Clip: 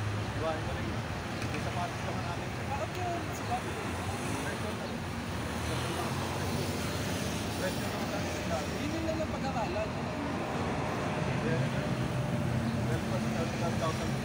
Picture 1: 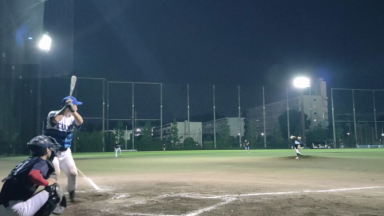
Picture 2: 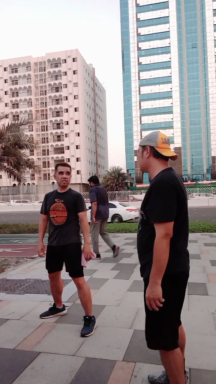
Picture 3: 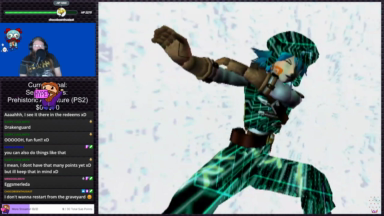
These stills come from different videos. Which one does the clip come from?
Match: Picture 2